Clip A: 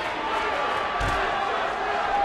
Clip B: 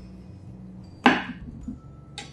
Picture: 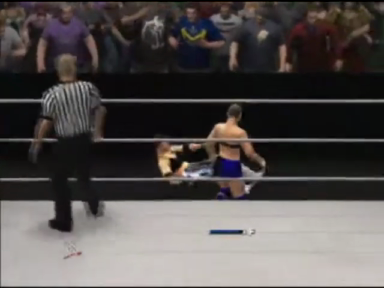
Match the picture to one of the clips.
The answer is A